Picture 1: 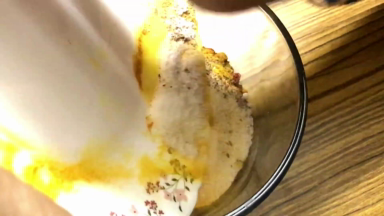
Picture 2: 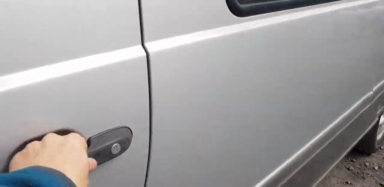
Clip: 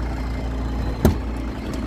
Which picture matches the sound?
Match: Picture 2